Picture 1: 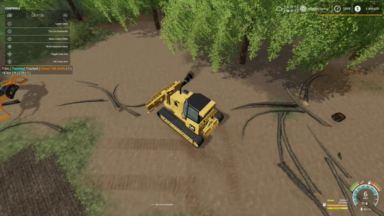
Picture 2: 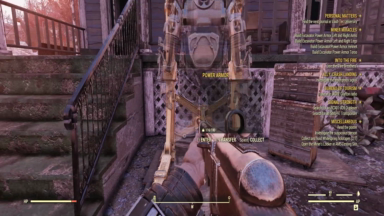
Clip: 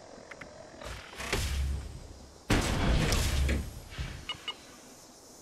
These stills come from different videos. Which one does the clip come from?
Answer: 2